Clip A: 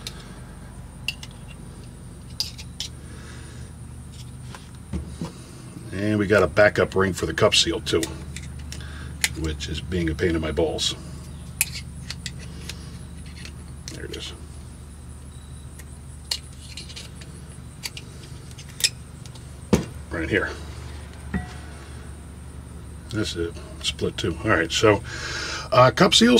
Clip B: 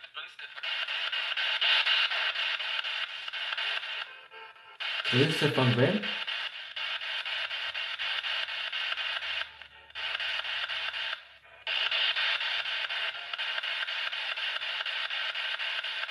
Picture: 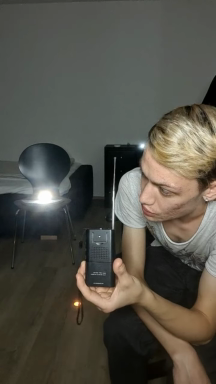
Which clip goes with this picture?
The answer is B